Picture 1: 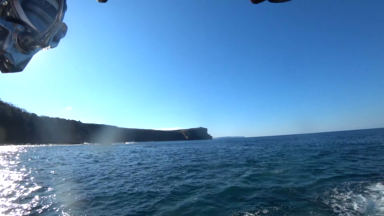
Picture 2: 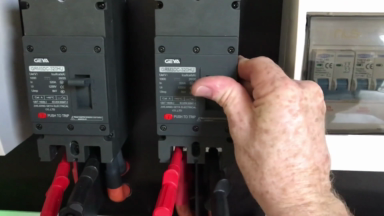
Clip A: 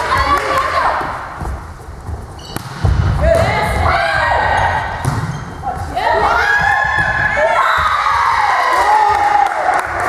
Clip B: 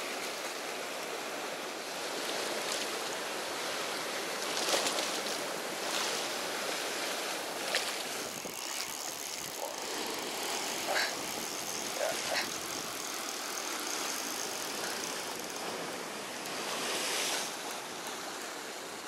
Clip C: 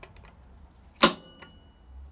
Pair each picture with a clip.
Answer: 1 B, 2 C